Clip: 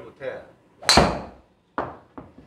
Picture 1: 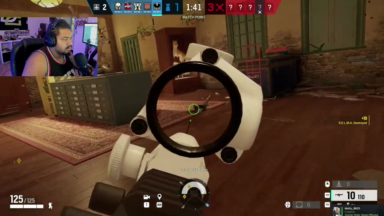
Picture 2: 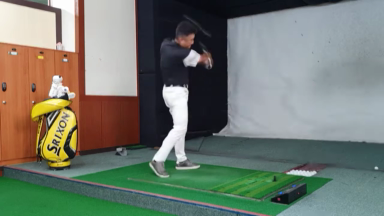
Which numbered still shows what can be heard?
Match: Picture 2